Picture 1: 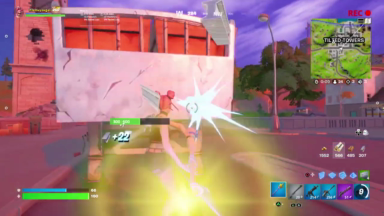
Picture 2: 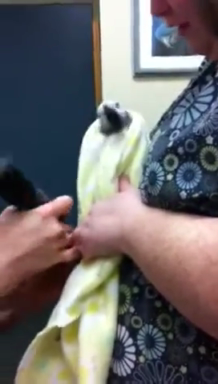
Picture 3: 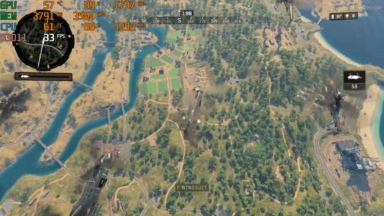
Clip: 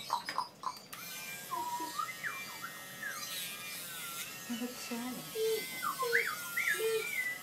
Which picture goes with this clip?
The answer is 2